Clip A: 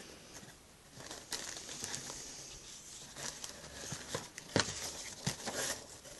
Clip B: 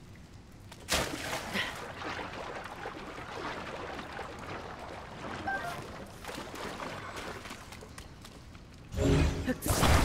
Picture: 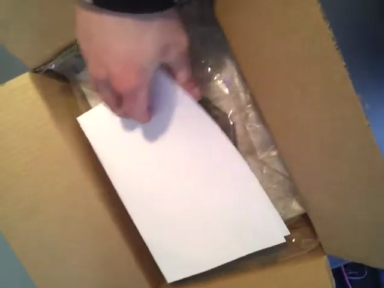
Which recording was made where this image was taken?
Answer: A